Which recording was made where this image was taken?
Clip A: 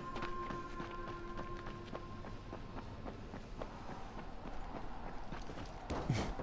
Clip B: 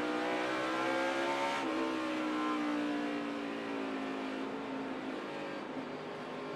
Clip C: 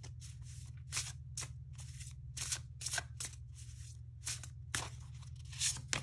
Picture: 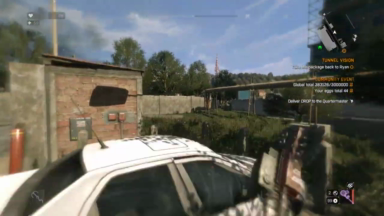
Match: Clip A